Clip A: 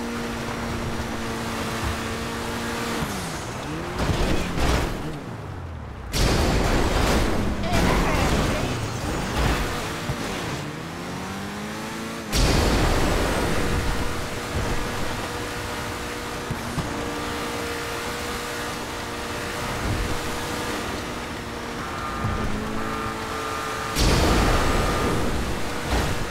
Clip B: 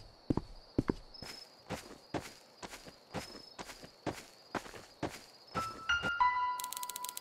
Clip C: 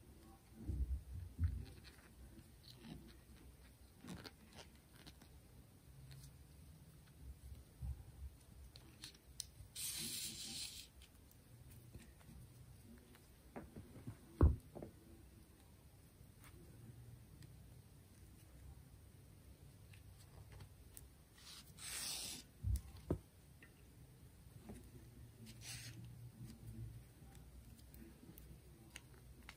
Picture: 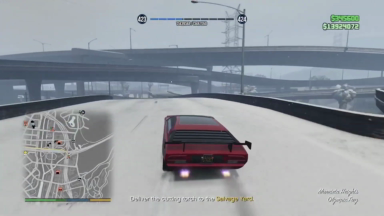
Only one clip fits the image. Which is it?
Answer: A